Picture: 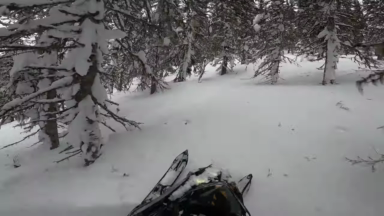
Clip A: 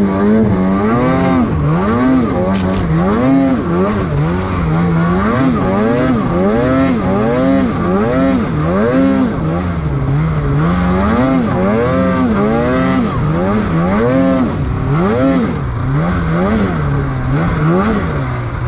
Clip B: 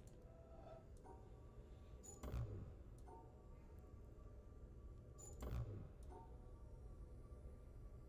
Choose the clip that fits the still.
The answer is A